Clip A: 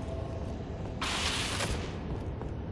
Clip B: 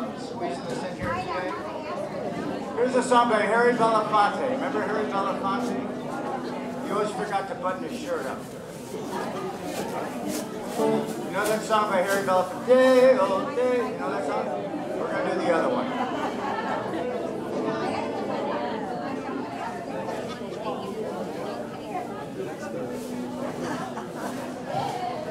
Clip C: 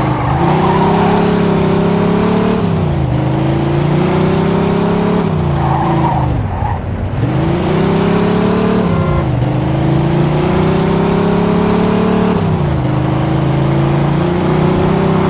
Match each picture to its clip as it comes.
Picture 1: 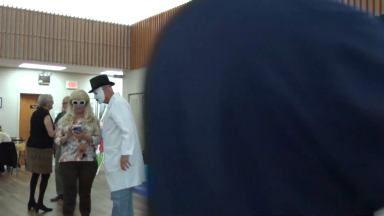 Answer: B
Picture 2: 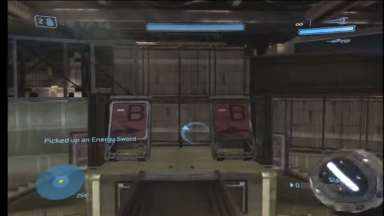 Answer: A